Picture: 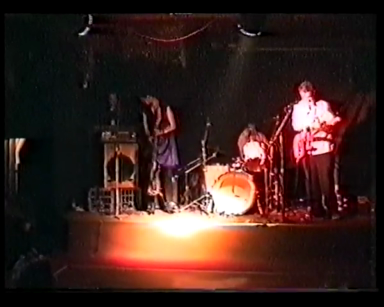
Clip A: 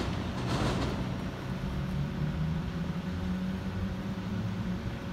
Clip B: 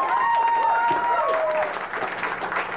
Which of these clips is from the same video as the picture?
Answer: B